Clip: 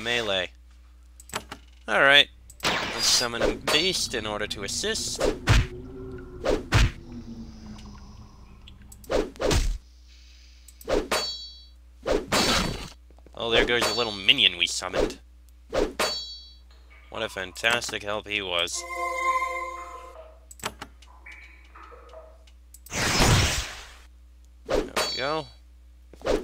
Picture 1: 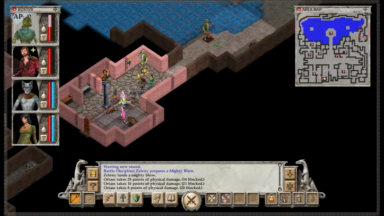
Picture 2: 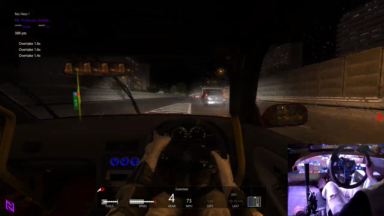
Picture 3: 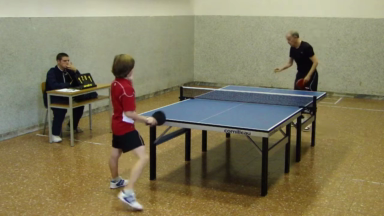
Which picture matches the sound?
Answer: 1